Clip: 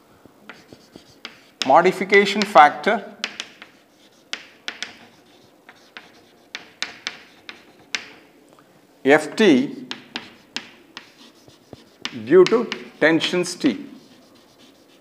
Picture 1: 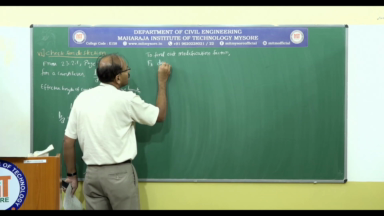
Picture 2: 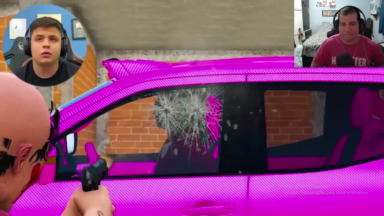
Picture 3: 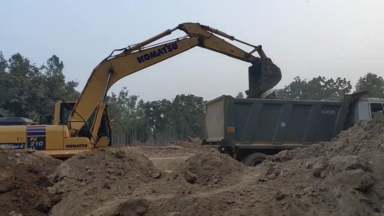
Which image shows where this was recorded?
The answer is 1